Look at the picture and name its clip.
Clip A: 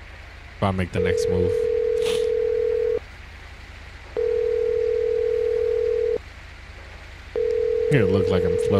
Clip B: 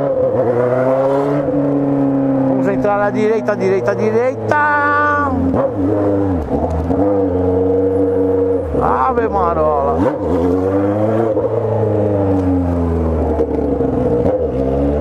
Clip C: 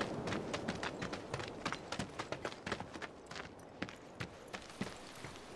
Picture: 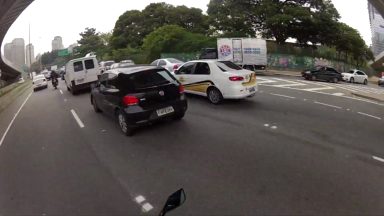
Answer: B